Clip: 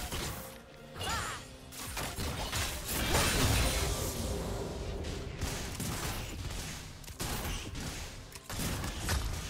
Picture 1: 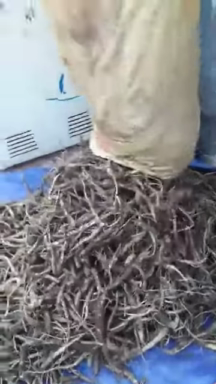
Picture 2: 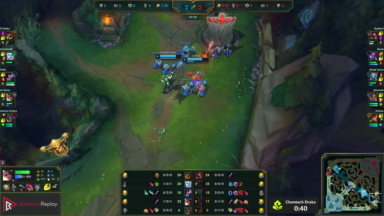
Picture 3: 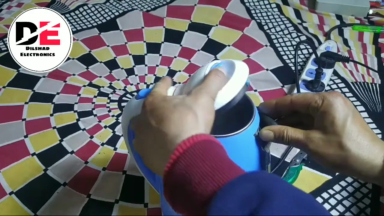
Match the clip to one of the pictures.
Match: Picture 2